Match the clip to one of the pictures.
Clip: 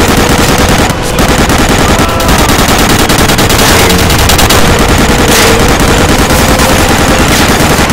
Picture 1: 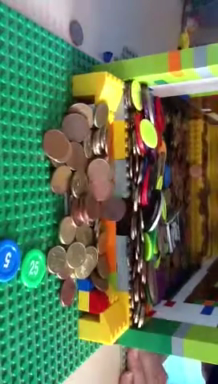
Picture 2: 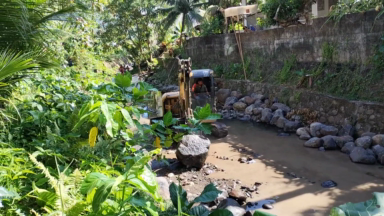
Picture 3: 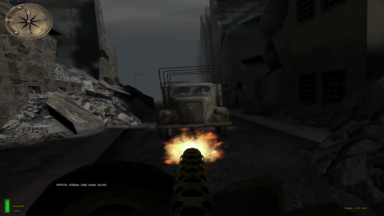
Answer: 3